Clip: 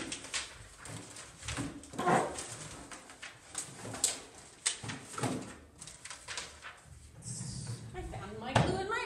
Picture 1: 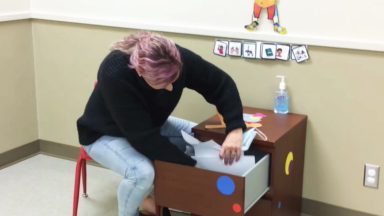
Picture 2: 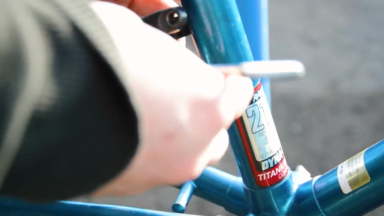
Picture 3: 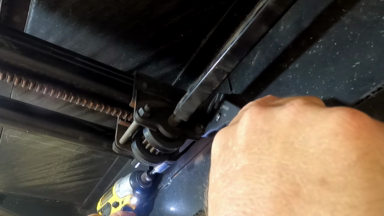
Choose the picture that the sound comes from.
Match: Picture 1